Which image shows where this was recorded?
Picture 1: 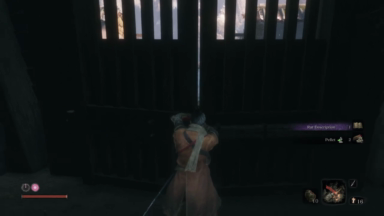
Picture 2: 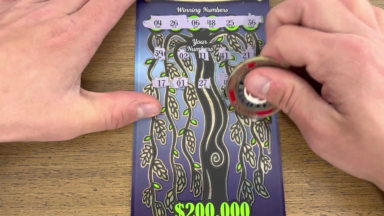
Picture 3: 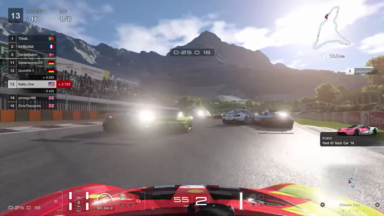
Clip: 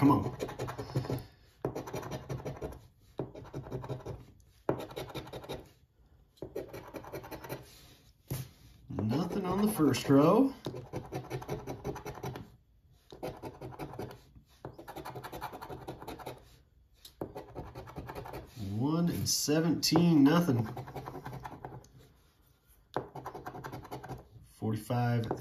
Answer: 2